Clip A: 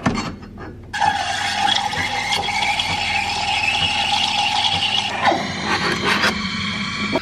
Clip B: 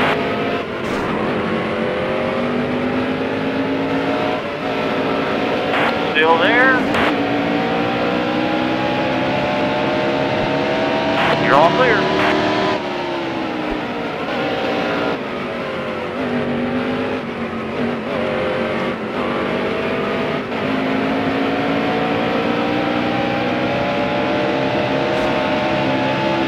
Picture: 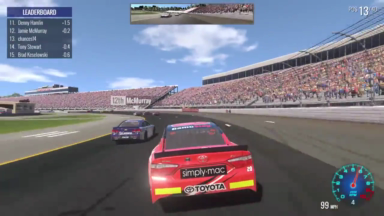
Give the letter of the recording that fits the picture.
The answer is B